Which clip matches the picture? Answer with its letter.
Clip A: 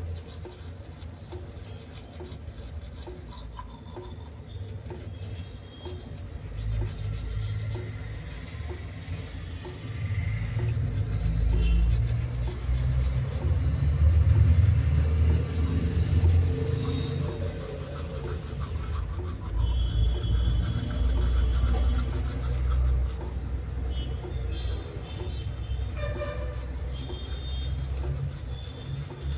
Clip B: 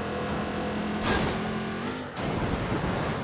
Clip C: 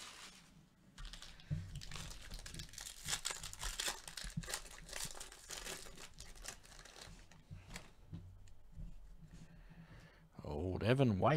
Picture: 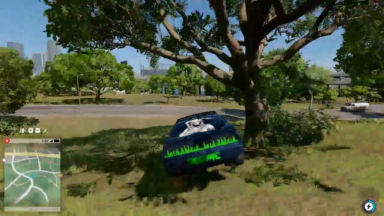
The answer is B